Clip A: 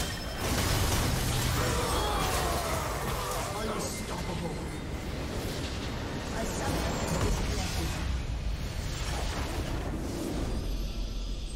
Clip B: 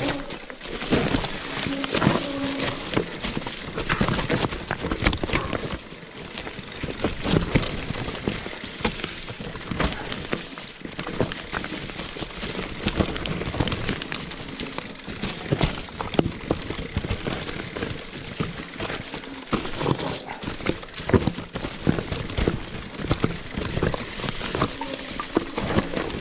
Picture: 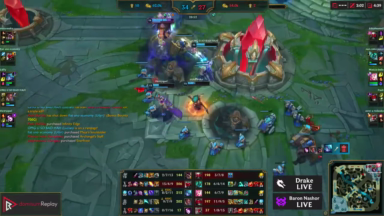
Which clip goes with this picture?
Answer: A